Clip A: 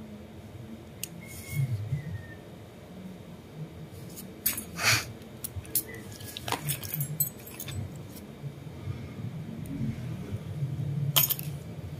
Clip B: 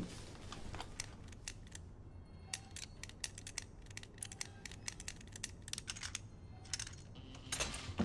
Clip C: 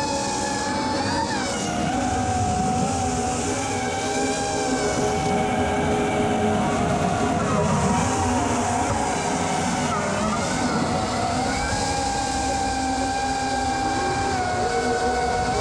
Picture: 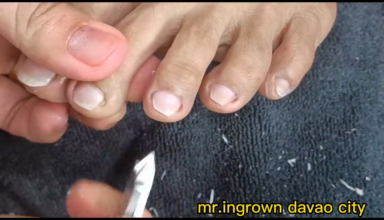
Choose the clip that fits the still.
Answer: A